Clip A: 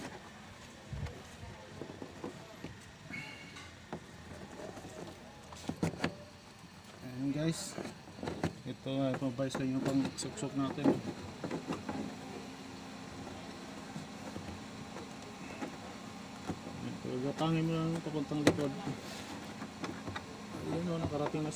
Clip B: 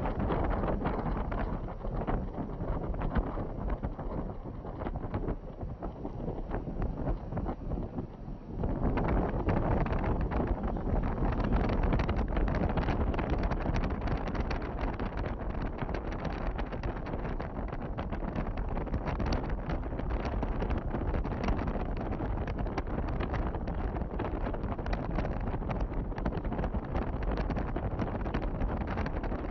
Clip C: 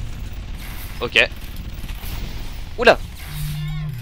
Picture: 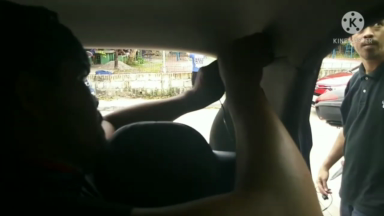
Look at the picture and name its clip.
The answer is A